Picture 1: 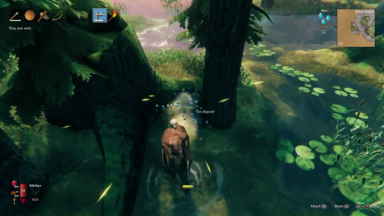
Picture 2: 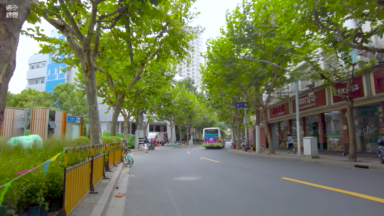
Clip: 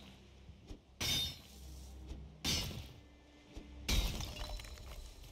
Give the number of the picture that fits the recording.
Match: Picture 1